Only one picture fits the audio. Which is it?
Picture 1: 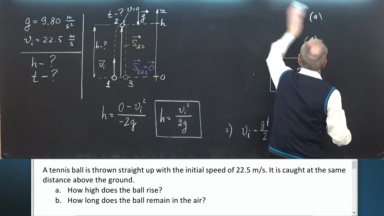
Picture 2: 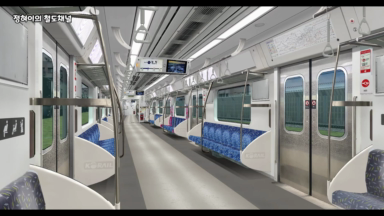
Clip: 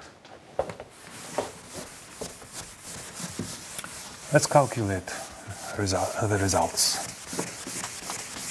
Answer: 1